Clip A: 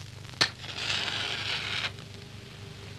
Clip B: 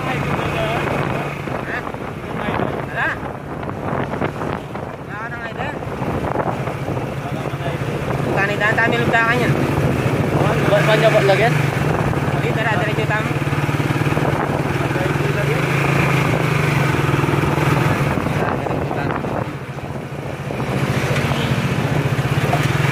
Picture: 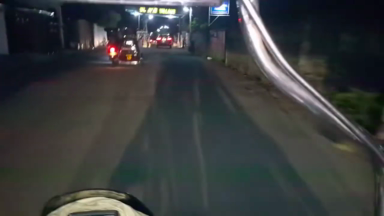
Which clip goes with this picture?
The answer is B